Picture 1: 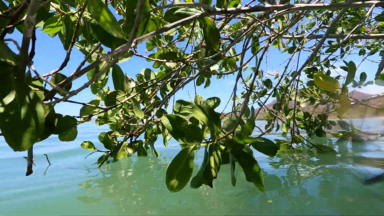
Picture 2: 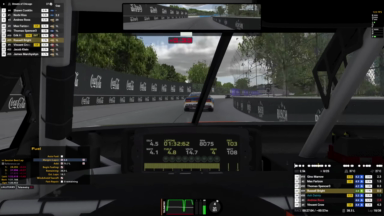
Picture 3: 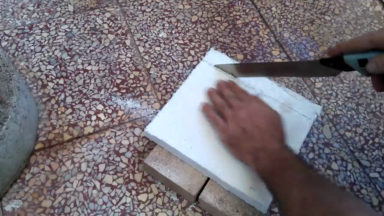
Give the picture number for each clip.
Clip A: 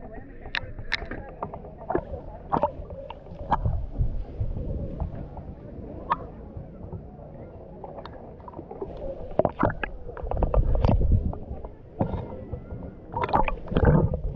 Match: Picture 1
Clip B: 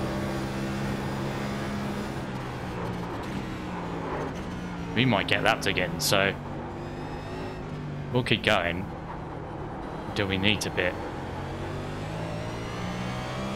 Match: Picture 2